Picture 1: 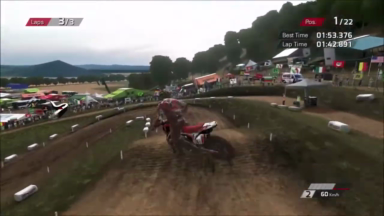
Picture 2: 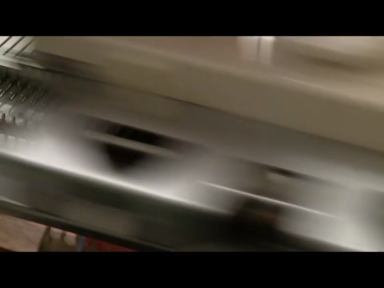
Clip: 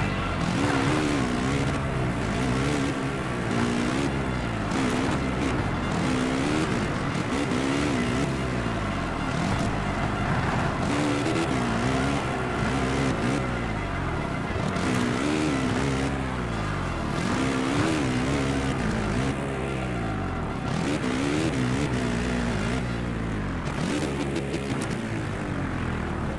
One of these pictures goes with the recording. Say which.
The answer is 1